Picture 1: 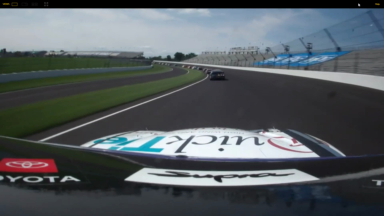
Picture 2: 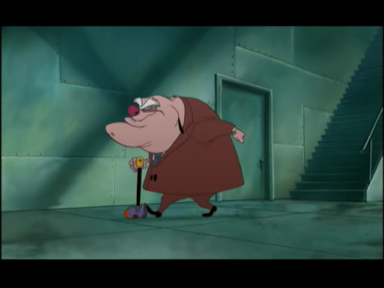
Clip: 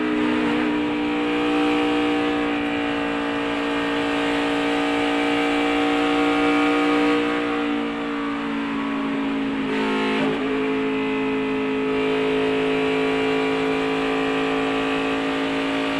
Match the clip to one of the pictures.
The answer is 1